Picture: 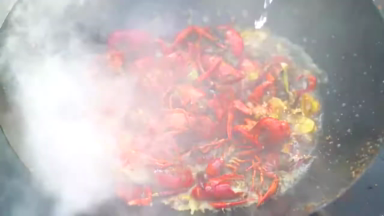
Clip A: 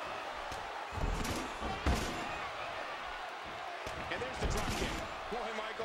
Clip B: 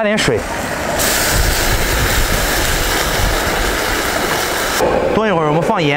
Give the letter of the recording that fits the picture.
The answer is B